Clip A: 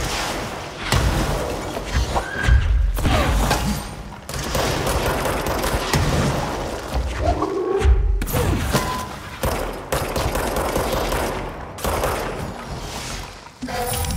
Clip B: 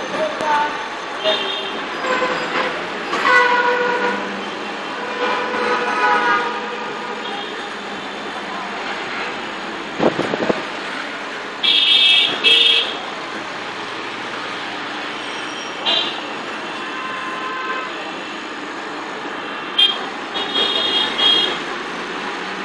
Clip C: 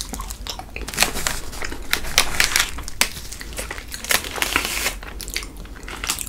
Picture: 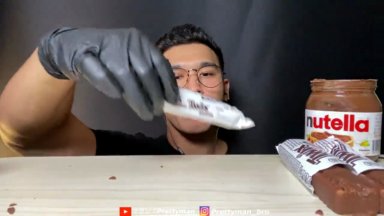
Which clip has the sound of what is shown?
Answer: C